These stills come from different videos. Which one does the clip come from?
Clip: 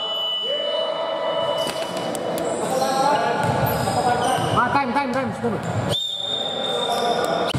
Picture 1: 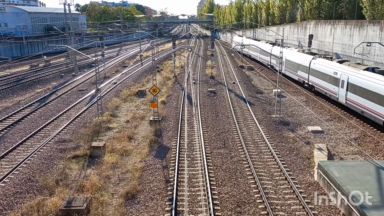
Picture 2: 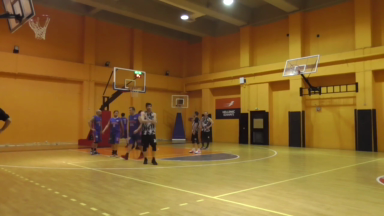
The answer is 2